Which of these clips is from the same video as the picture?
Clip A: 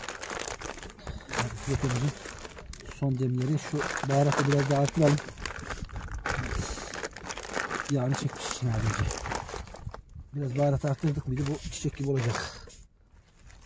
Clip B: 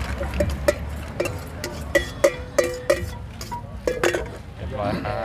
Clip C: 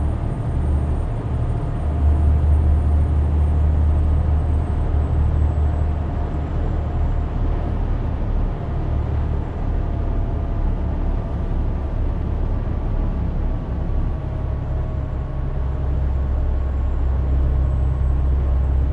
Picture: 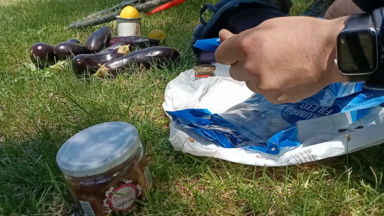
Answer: A